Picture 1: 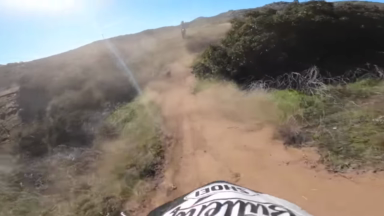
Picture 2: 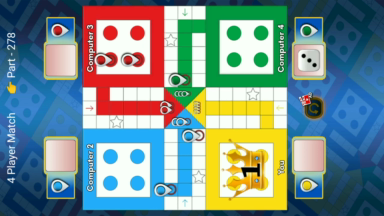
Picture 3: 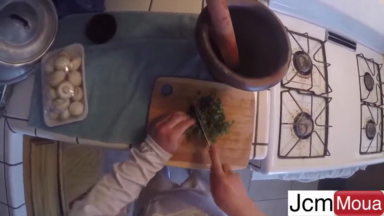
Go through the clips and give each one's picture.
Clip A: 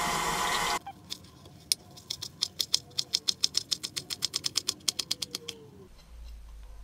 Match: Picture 3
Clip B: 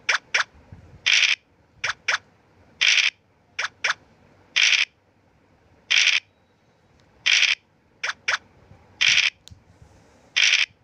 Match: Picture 2